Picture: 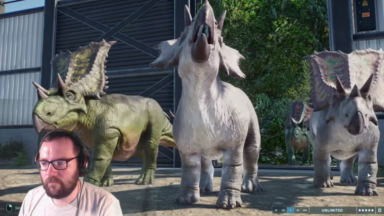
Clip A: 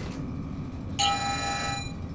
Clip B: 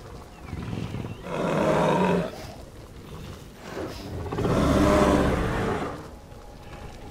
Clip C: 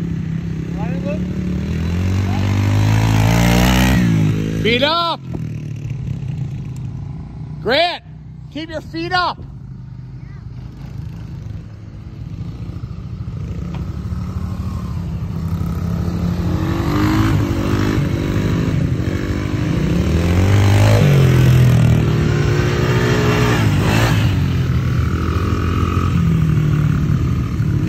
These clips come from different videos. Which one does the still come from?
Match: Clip B